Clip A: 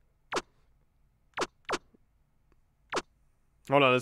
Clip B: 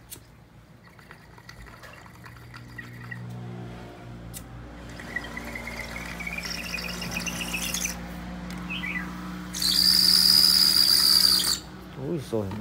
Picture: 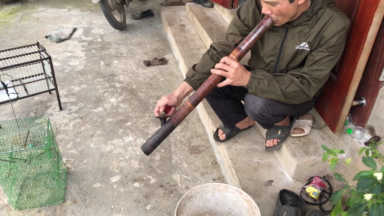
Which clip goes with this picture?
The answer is B